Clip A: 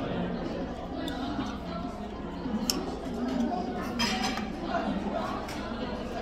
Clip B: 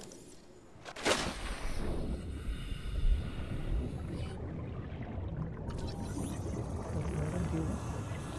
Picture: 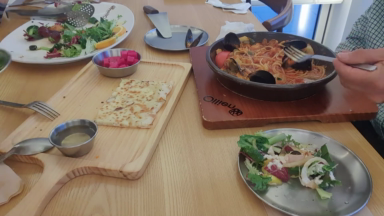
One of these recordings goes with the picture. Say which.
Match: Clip A